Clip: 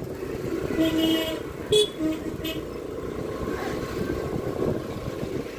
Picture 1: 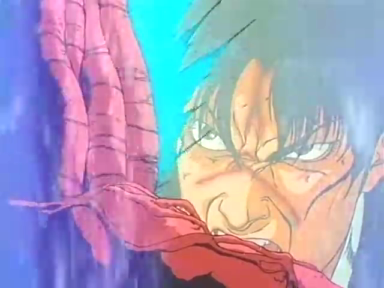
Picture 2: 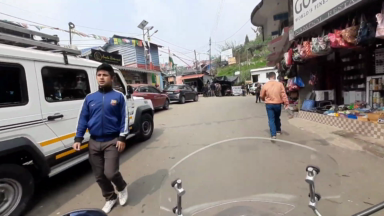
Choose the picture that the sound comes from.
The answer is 2